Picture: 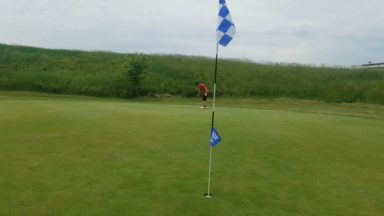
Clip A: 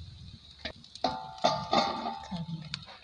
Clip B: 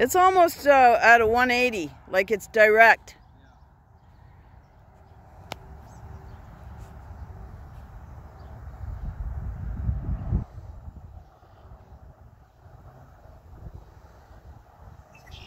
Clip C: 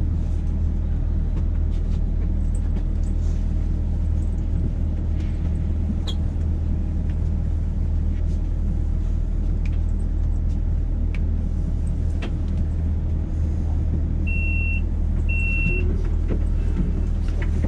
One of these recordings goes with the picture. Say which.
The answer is B